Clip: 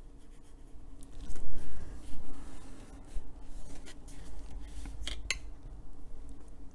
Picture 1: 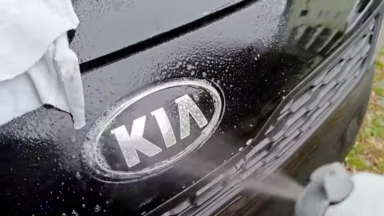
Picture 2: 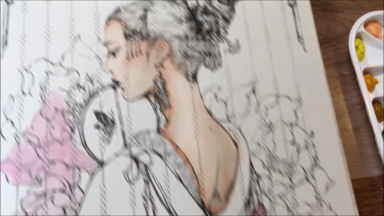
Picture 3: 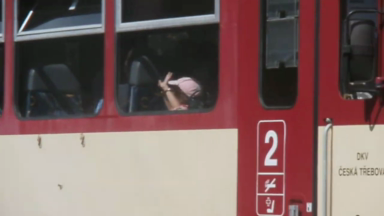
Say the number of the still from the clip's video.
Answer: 2